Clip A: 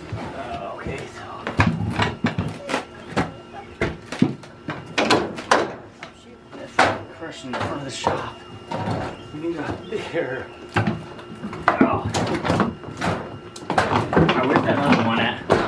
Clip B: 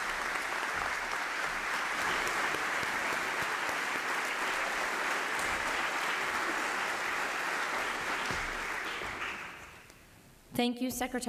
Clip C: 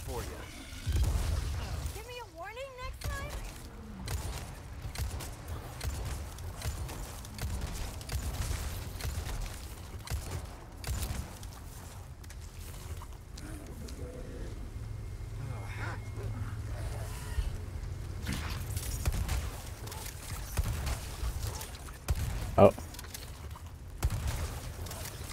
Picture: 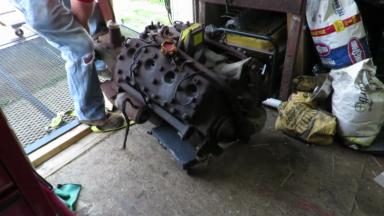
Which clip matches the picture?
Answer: A